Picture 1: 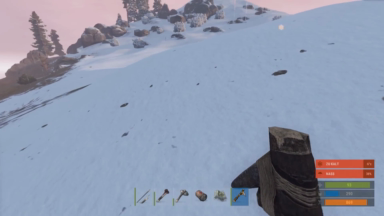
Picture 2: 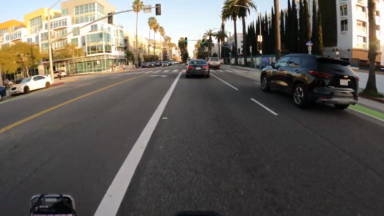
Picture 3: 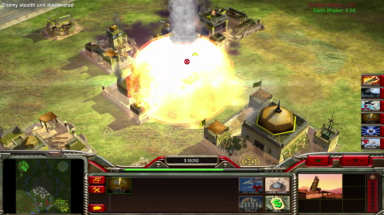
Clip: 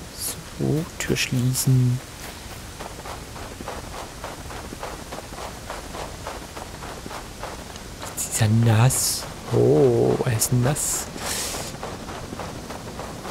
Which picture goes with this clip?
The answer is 1